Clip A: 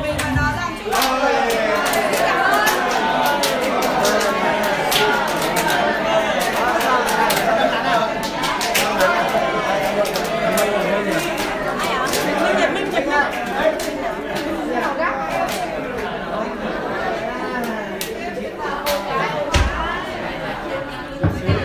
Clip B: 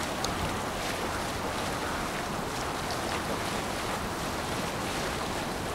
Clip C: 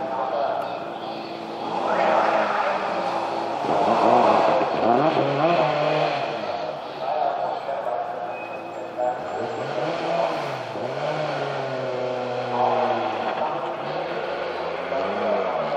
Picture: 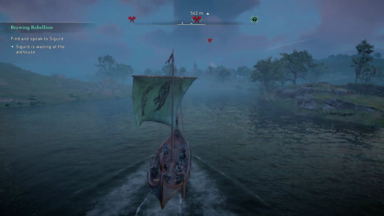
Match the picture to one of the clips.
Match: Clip B